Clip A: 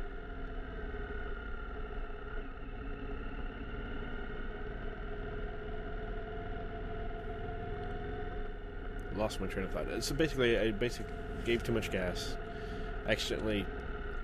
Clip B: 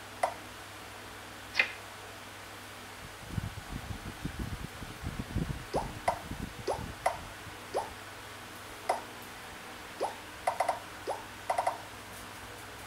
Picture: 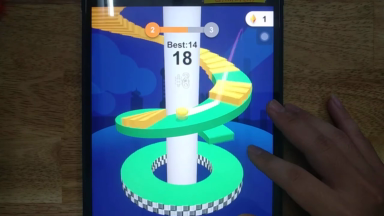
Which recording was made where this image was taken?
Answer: B